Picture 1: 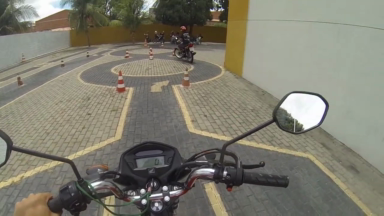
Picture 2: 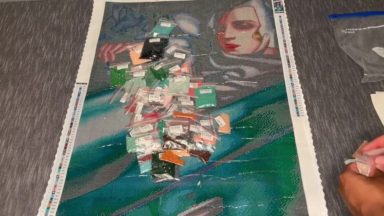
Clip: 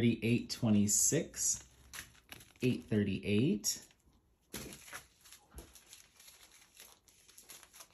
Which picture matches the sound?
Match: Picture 2